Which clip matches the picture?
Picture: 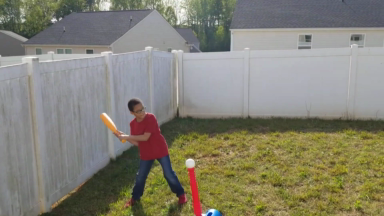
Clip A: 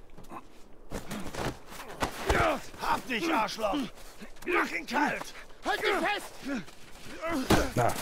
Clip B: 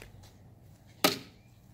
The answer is B